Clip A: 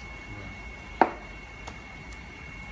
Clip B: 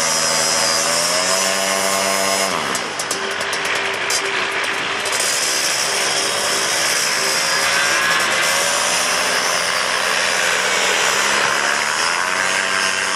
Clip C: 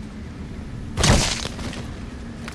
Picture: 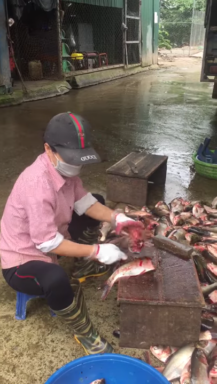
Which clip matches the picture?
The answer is A